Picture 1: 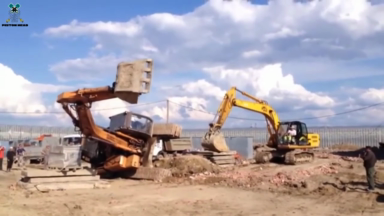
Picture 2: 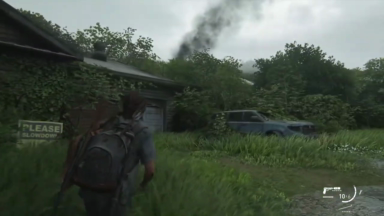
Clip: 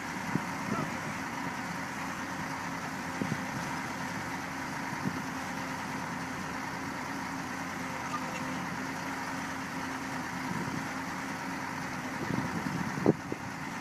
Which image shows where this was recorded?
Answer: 1